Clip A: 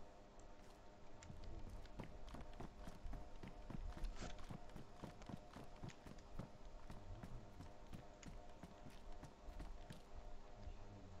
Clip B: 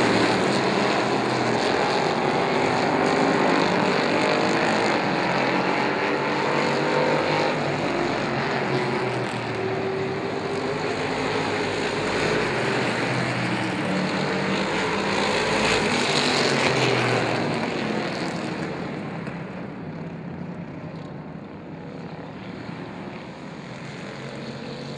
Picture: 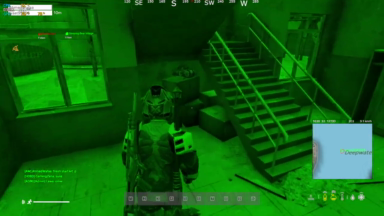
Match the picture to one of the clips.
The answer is A